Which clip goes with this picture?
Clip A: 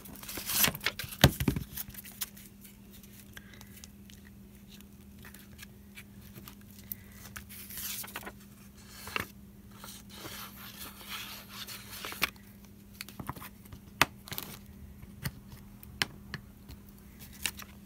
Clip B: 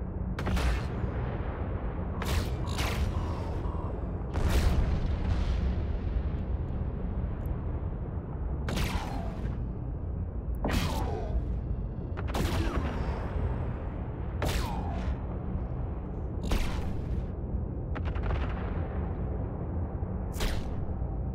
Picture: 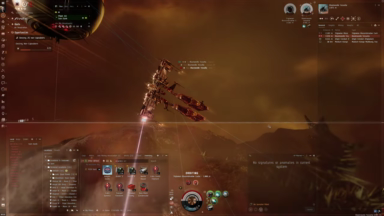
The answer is B